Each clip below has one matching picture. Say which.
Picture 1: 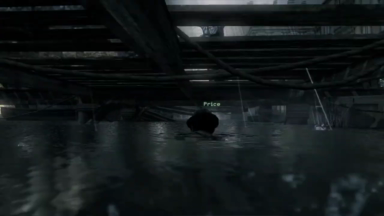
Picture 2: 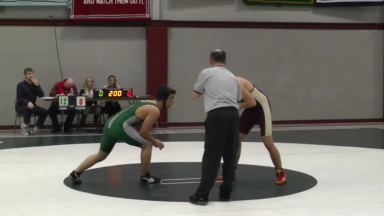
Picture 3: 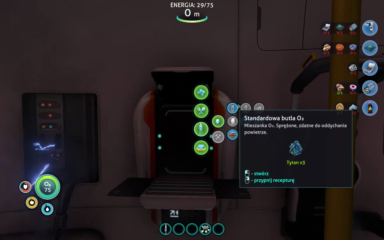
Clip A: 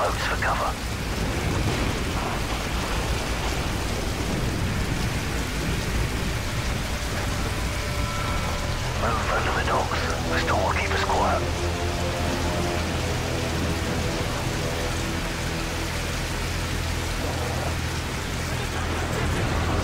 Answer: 1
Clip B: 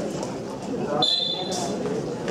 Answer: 2